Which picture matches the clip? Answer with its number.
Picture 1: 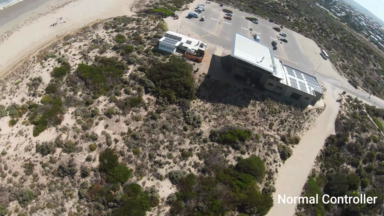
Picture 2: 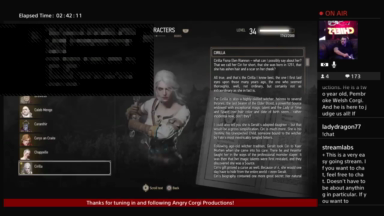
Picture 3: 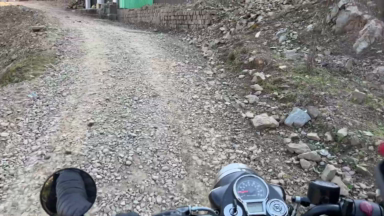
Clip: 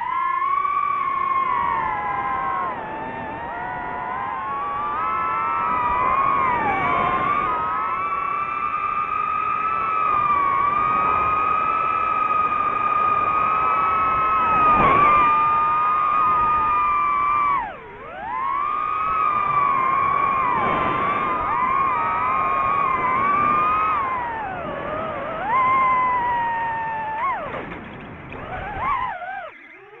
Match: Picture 1